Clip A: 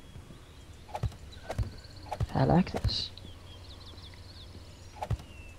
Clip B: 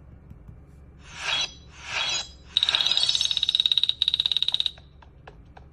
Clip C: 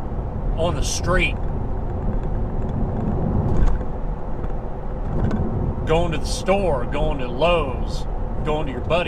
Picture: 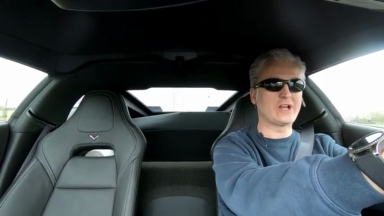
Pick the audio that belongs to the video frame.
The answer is C